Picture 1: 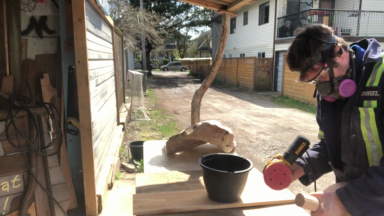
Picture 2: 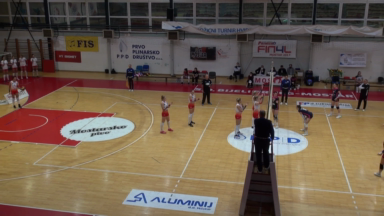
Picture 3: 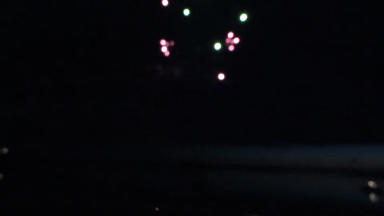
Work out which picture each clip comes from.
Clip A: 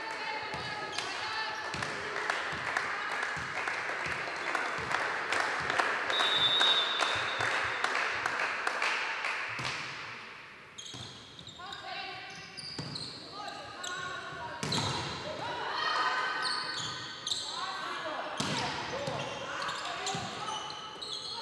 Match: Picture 2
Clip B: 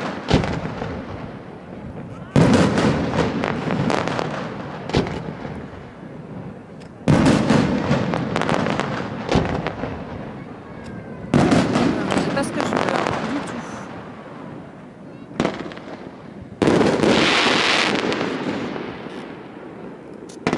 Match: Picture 3